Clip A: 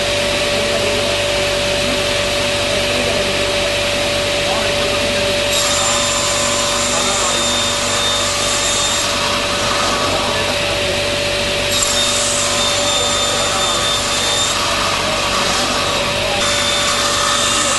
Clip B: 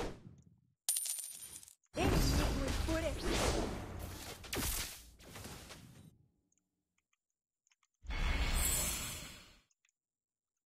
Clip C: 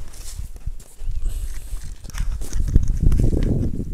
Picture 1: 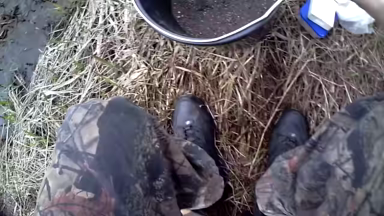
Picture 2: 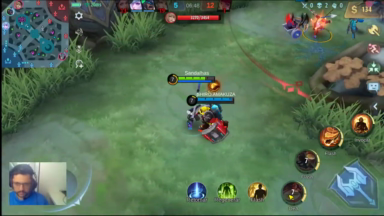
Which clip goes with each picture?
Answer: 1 C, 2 B